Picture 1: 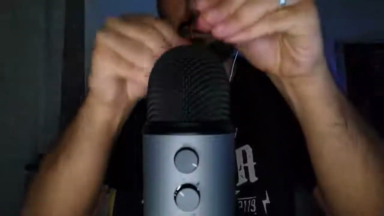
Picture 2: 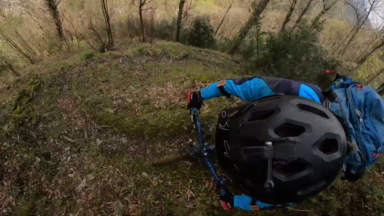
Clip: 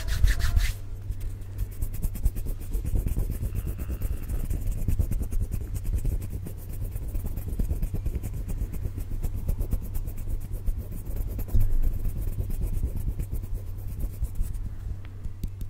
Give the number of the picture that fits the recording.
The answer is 1